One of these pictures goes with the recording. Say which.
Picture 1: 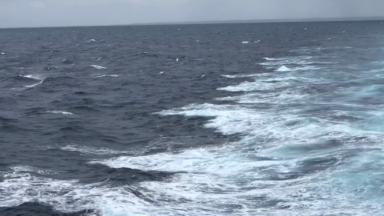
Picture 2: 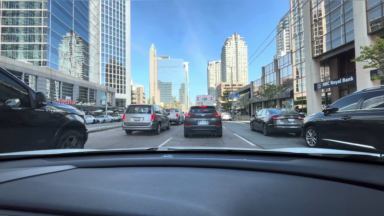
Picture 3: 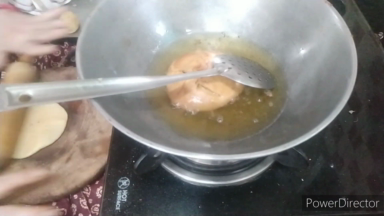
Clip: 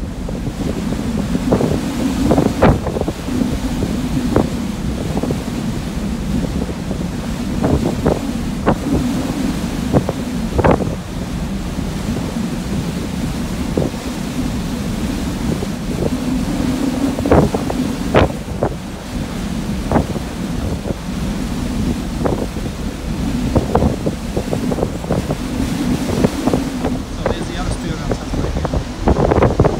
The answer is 1